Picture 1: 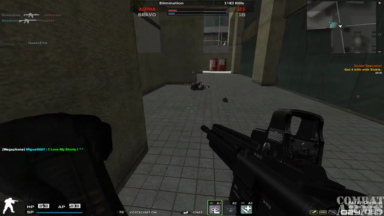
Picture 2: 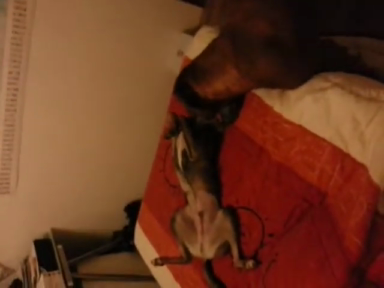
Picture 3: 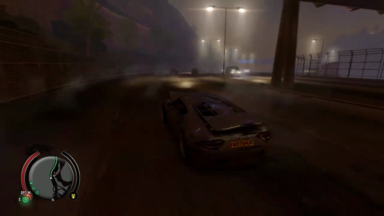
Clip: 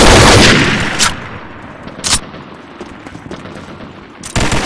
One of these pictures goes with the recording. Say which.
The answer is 1